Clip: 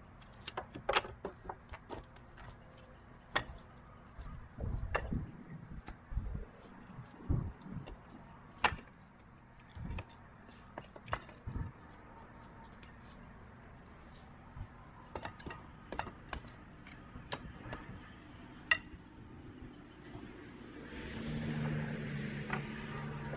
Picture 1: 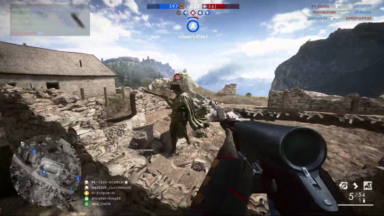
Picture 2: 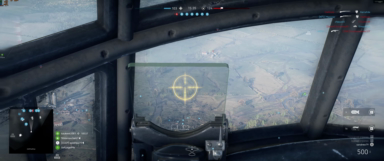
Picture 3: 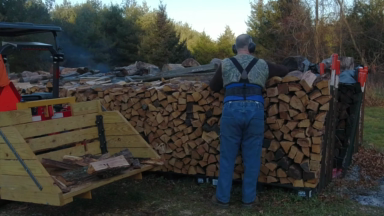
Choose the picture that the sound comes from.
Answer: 3